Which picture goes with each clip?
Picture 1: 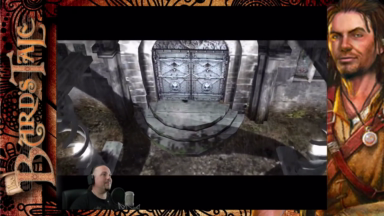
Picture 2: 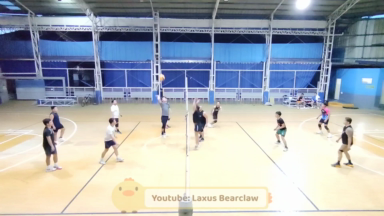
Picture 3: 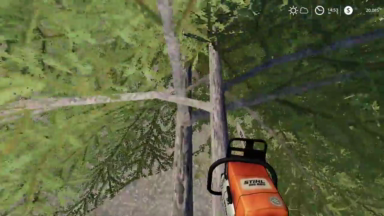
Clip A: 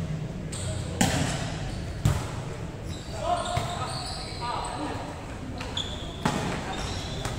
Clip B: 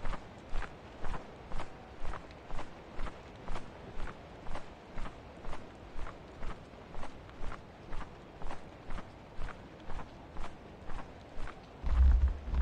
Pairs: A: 2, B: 1